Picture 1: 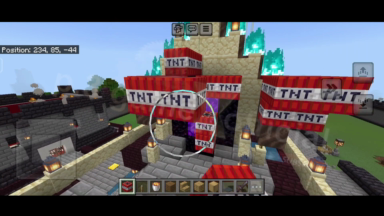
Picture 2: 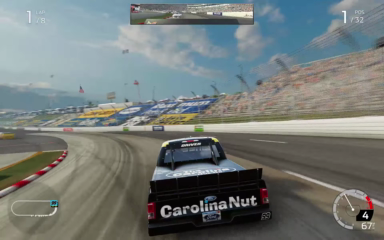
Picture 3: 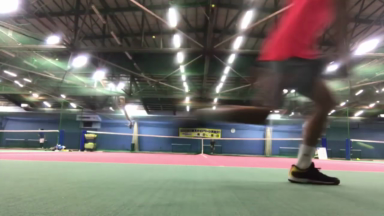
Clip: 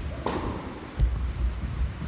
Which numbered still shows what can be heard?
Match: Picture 3